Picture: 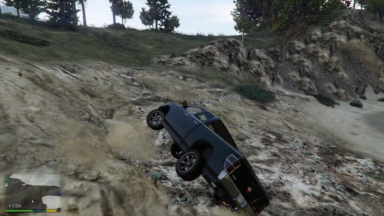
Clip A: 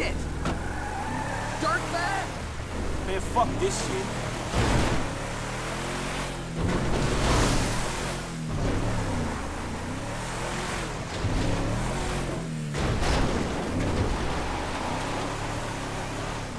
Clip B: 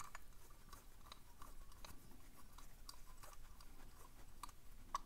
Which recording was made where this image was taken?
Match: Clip A